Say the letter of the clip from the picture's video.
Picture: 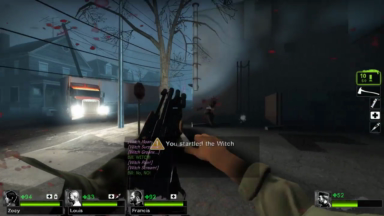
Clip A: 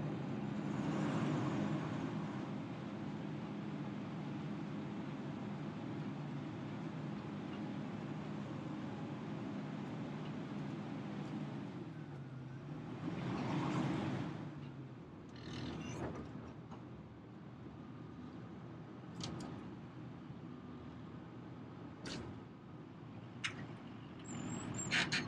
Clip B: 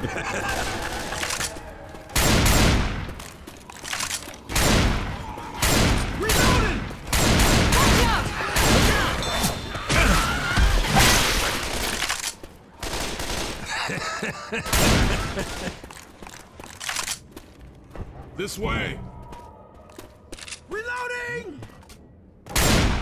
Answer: B